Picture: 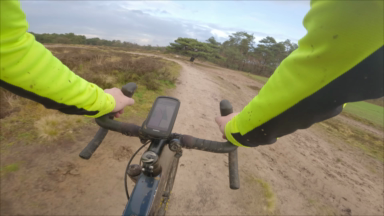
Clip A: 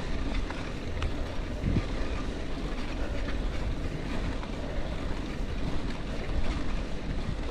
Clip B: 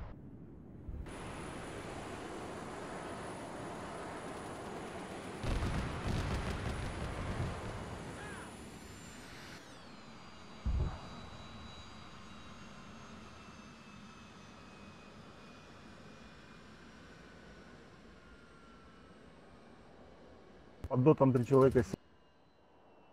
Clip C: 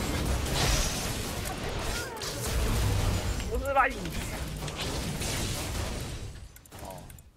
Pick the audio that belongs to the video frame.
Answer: A